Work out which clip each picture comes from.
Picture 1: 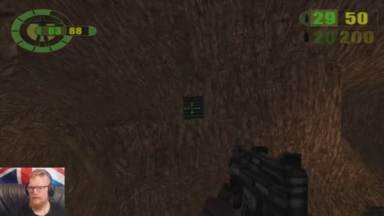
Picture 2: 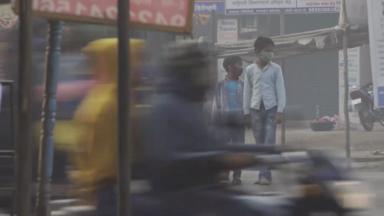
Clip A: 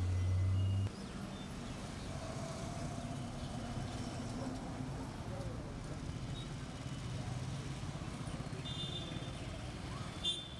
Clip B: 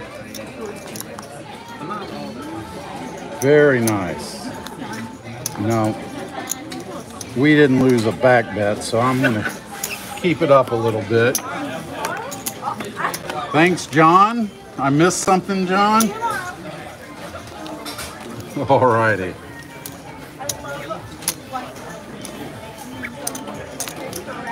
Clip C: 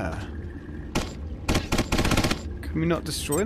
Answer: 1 C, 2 A